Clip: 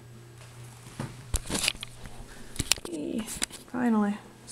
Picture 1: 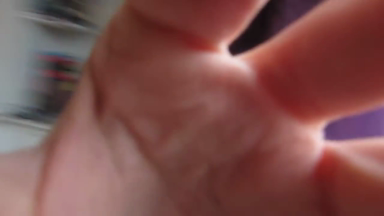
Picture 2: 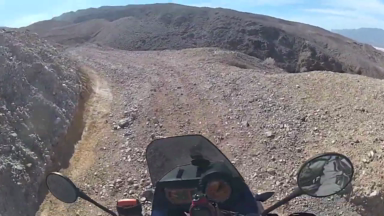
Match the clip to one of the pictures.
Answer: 1